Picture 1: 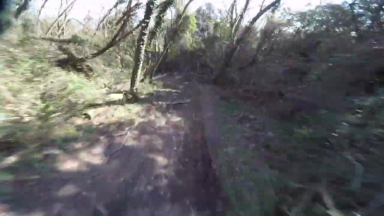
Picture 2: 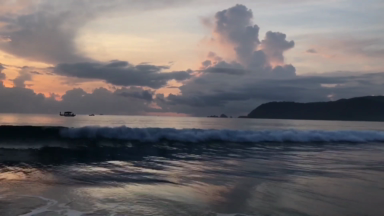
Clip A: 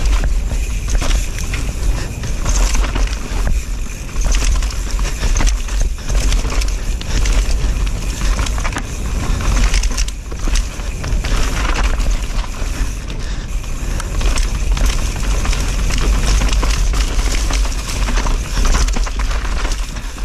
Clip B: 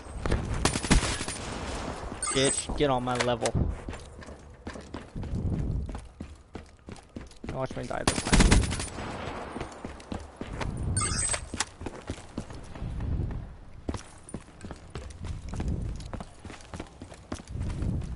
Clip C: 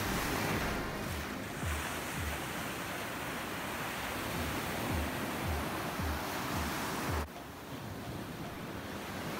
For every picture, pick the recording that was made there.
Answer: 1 A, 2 C